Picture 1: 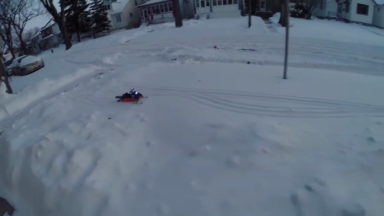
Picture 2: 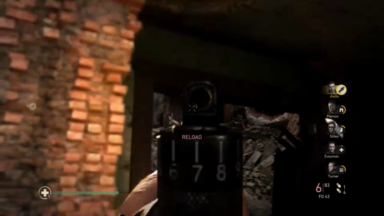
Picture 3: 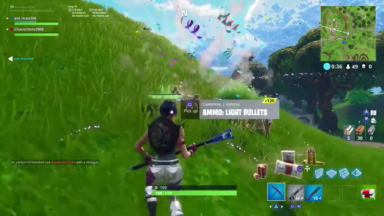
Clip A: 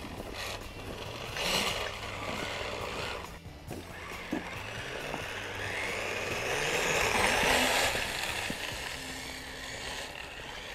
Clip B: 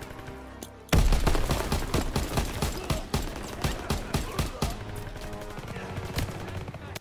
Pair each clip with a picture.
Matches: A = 1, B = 2